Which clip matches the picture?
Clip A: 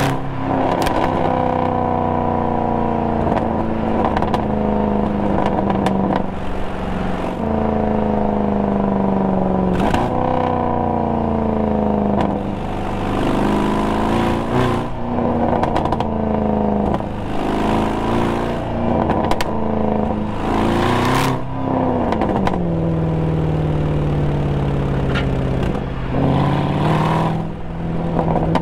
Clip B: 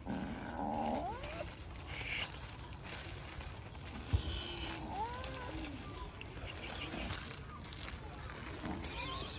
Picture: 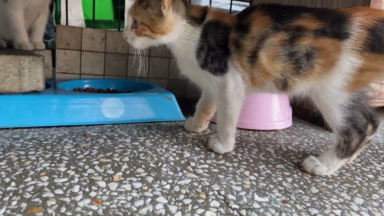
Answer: B